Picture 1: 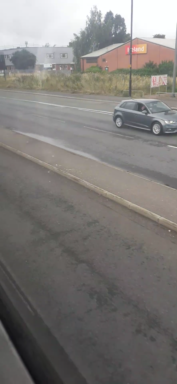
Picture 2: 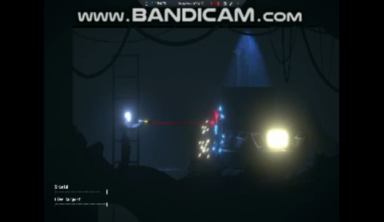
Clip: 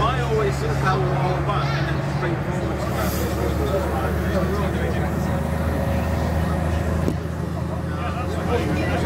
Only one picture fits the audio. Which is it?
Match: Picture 1